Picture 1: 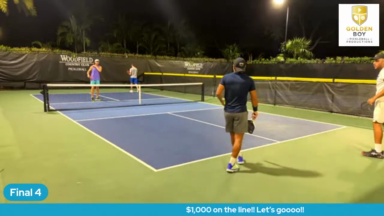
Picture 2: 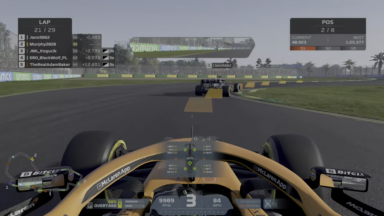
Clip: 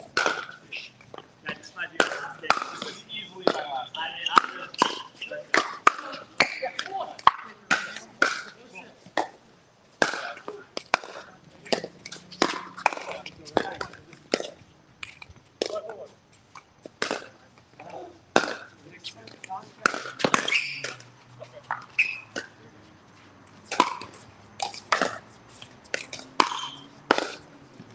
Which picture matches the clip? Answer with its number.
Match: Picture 1